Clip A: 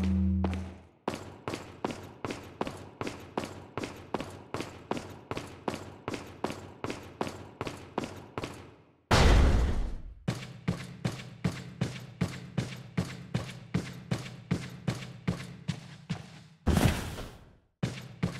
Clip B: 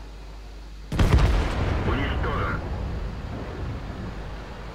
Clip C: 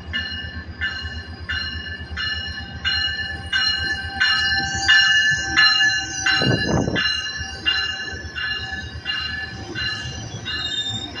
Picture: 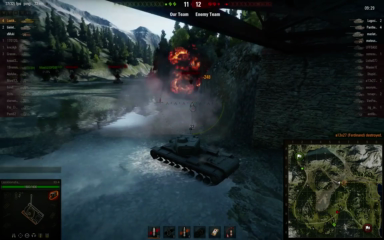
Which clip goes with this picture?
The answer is B